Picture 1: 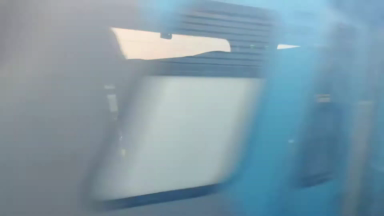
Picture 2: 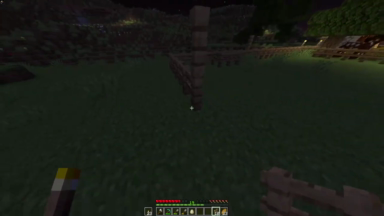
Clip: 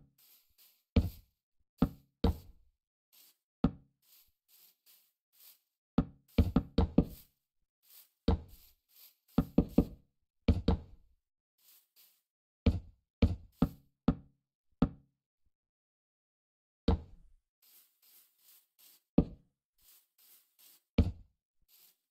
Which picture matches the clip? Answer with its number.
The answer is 2